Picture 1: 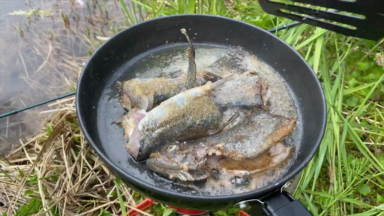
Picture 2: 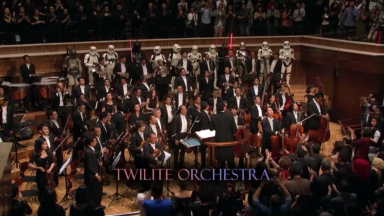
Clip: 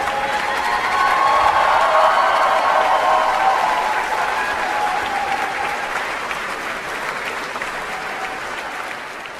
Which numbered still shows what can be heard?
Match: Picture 2